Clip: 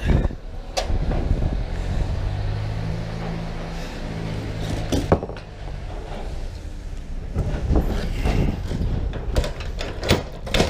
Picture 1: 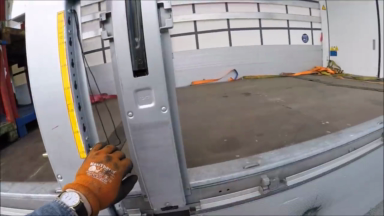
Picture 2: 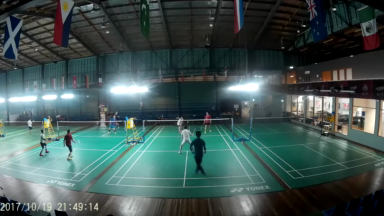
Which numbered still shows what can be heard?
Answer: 1